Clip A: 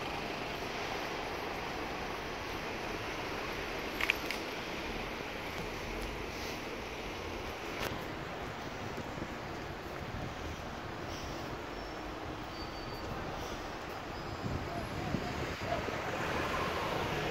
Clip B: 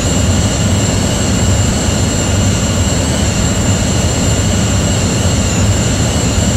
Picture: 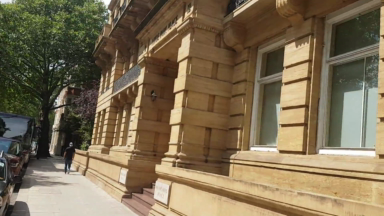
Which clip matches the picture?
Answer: A